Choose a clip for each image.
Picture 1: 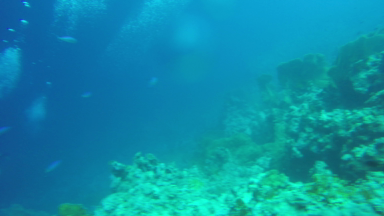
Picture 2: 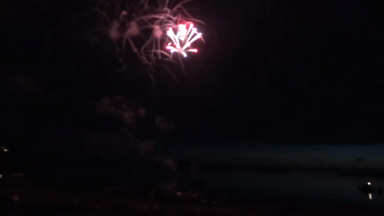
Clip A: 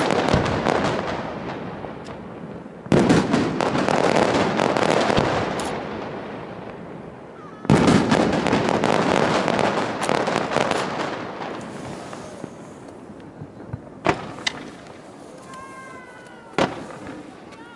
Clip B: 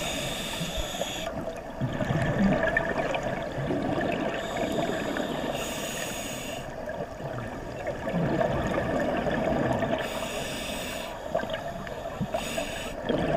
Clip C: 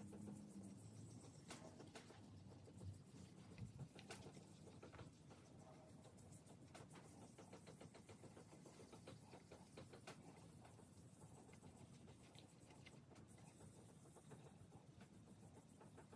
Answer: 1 B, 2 A